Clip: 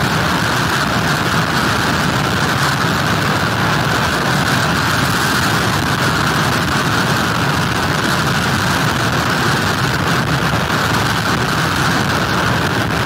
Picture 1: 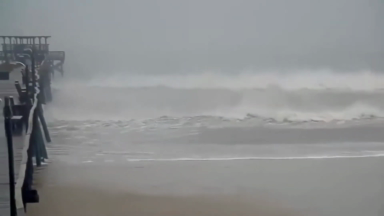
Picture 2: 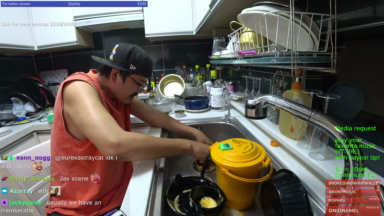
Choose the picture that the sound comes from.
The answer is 1